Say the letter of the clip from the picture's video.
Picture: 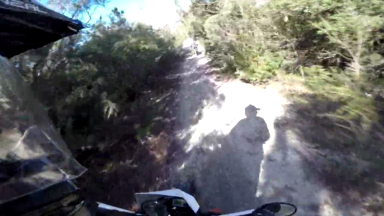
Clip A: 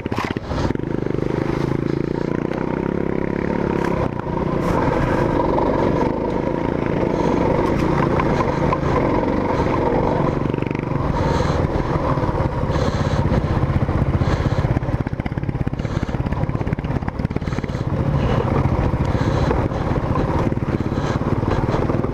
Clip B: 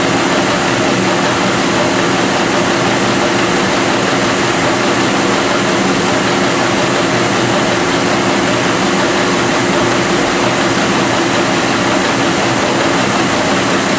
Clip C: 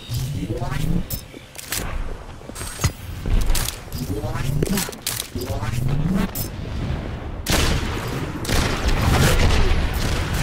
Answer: A